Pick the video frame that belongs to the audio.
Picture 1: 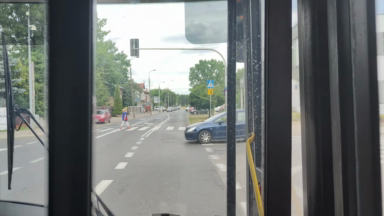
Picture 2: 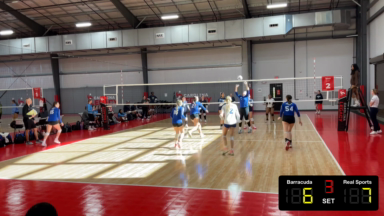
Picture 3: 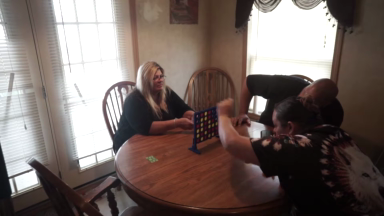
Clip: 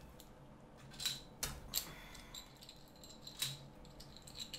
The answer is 3